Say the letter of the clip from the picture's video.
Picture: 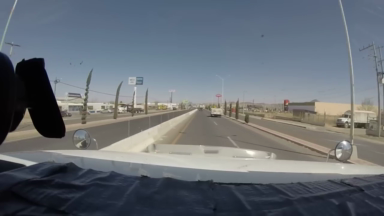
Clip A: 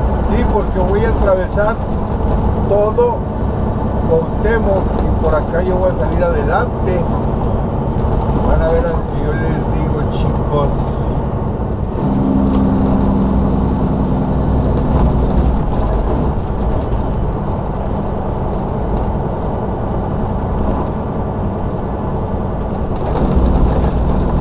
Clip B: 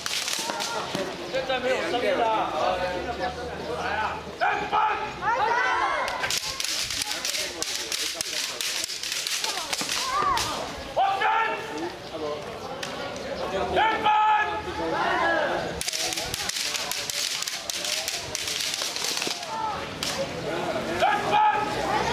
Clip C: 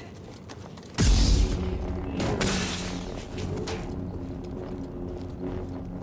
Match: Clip A